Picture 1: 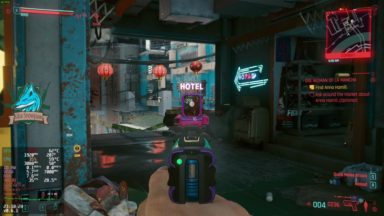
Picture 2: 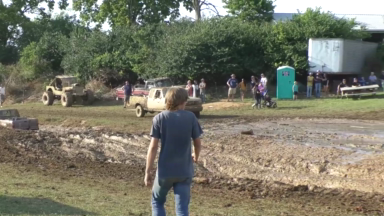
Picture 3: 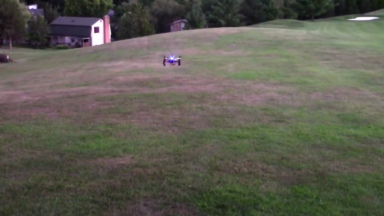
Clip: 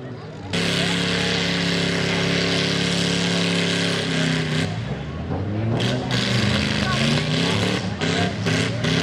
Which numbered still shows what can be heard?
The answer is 2